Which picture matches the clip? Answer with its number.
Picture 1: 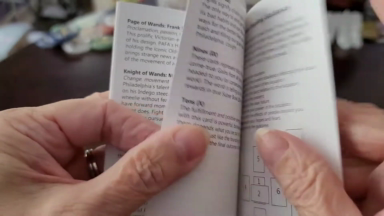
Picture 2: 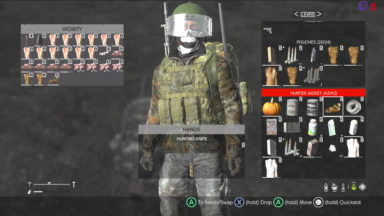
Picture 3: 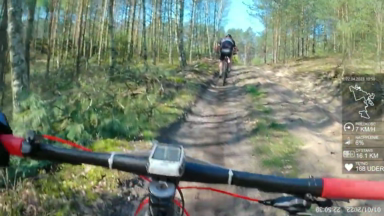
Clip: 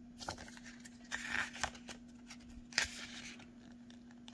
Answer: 1